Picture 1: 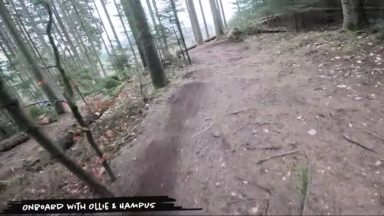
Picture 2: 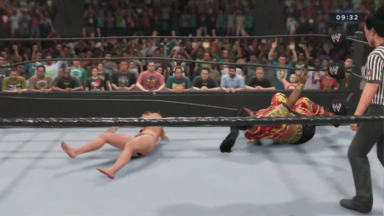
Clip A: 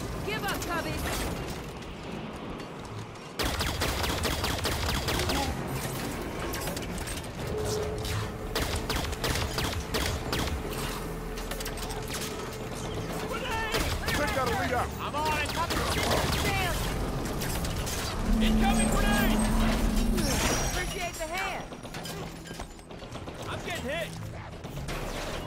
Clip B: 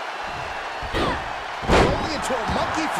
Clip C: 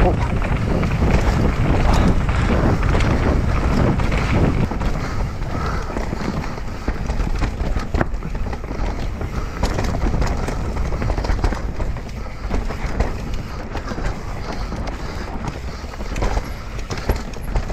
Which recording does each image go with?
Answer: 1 C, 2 B